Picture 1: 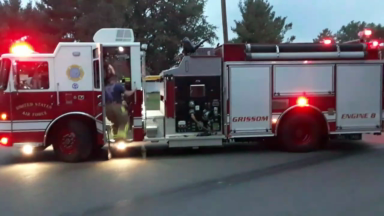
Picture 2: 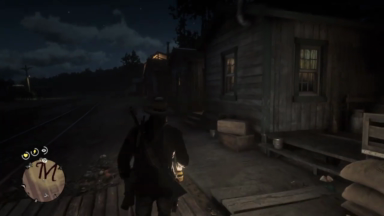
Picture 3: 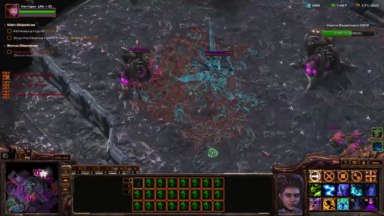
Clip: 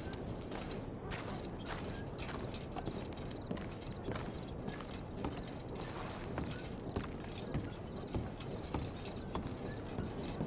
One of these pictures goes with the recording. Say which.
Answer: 2